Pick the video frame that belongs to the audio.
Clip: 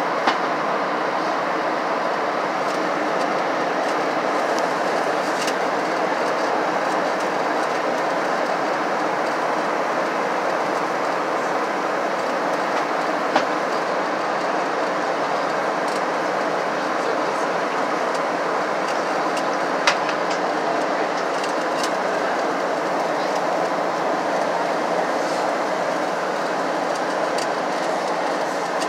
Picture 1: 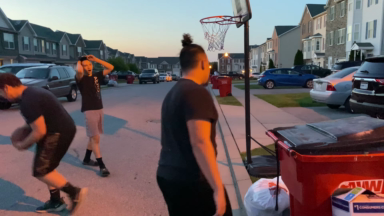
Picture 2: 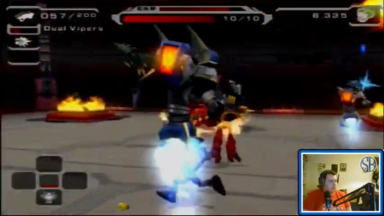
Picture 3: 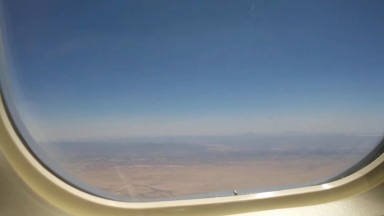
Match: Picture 3